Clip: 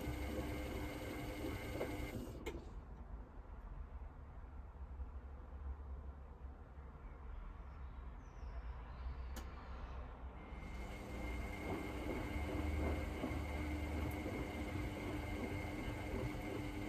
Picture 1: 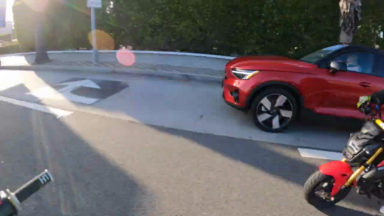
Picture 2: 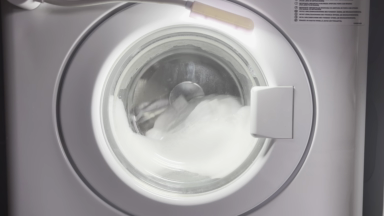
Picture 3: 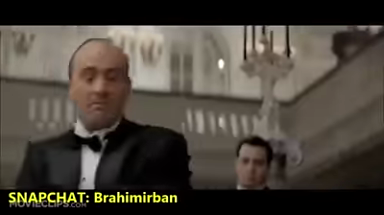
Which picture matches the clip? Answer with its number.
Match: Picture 2